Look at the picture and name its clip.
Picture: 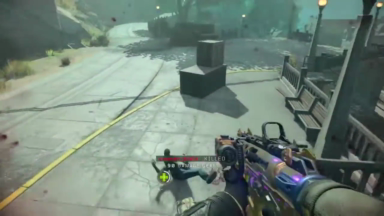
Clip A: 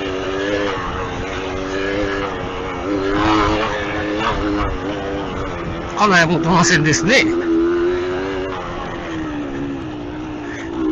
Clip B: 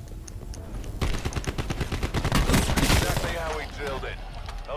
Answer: B